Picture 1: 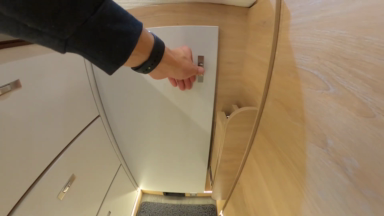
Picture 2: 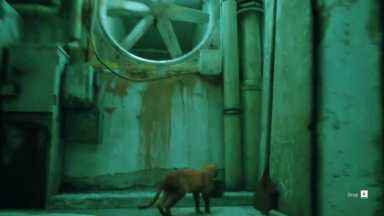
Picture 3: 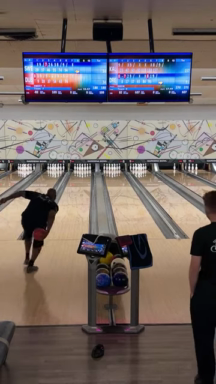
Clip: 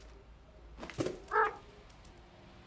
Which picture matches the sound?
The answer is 2